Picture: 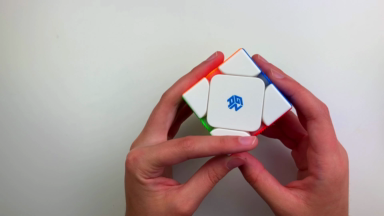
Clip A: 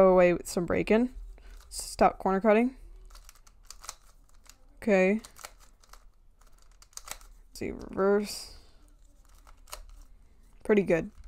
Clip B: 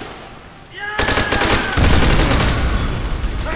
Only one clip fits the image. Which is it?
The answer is A